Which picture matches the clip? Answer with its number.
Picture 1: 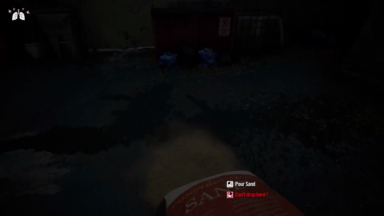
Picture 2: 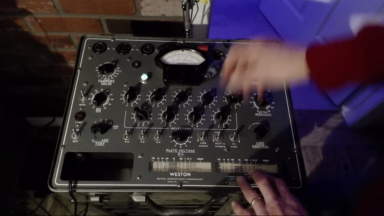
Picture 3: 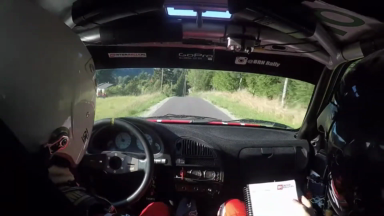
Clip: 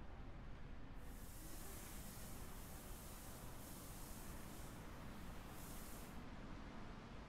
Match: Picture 1